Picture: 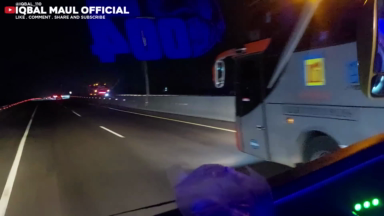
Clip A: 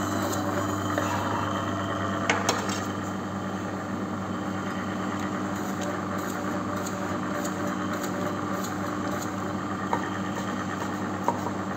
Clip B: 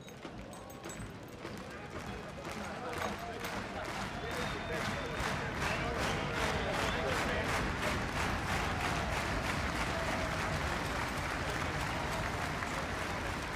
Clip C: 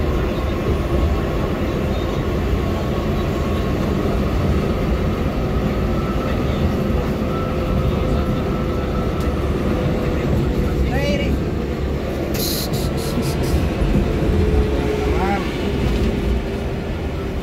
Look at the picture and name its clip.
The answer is C